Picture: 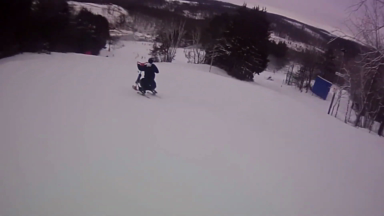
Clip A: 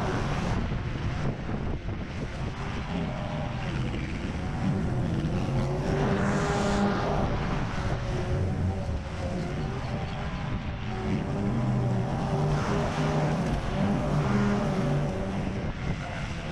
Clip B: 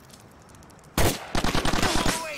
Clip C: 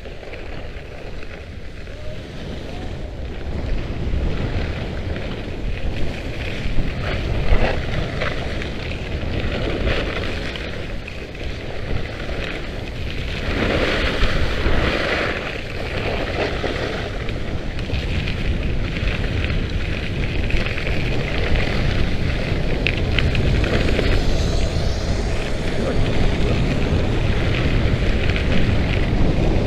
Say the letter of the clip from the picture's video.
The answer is C